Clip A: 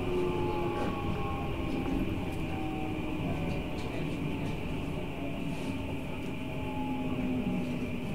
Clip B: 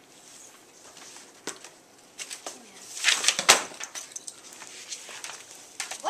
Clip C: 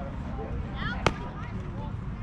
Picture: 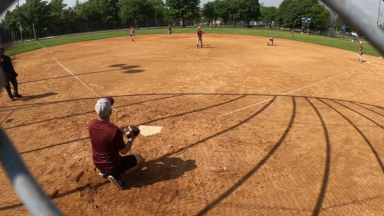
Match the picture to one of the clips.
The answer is C